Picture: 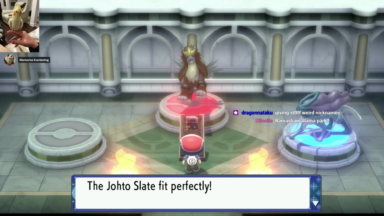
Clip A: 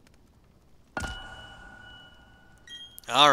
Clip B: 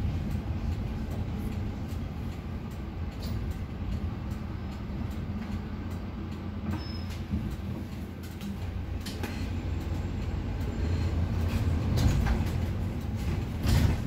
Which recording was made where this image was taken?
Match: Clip A